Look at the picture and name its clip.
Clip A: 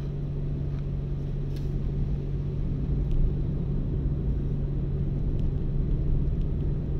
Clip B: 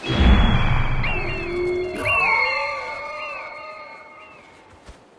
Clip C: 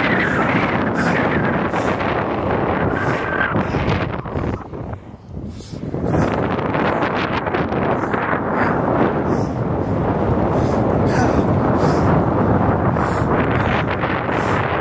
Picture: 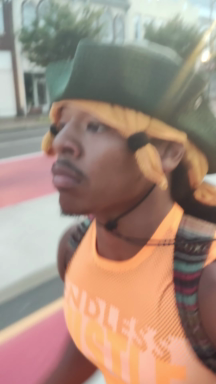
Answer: C